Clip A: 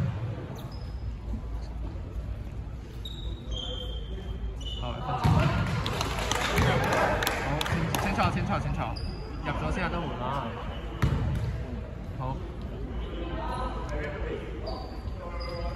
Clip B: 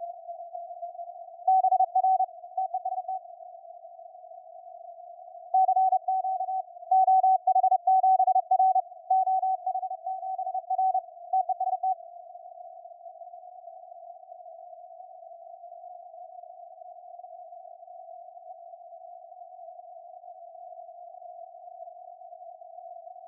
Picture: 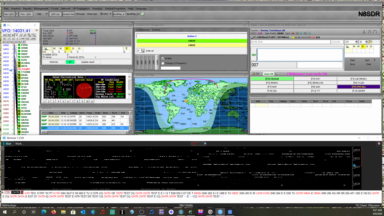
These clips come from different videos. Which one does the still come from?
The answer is B